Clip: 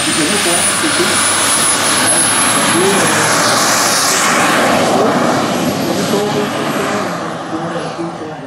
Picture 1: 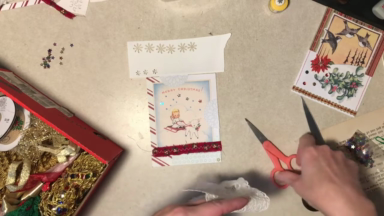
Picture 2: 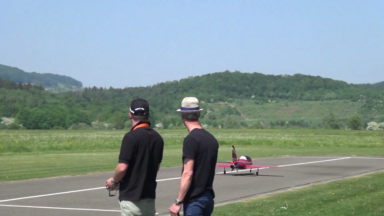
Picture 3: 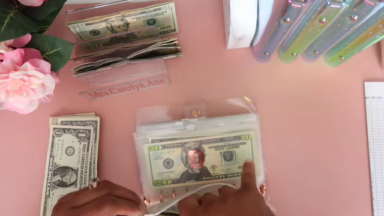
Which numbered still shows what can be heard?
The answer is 2